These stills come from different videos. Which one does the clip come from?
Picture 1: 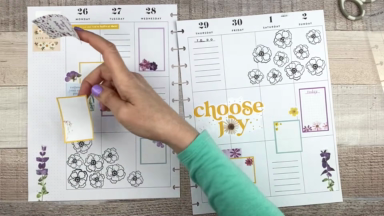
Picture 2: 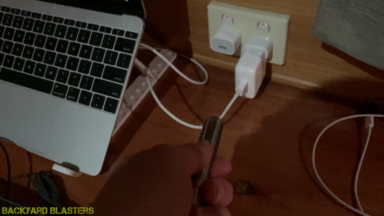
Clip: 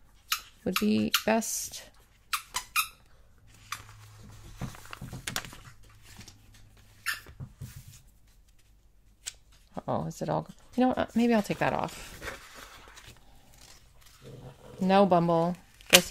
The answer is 1